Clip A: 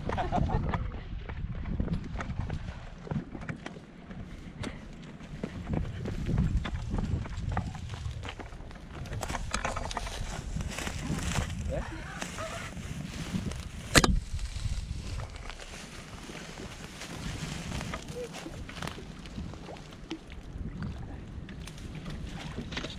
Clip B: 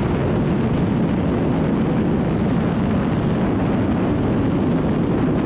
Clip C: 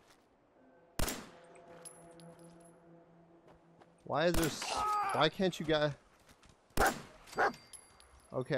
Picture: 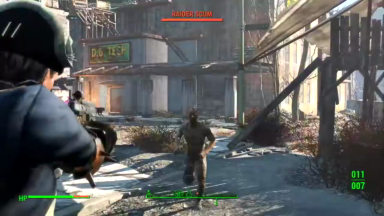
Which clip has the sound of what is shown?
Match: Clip C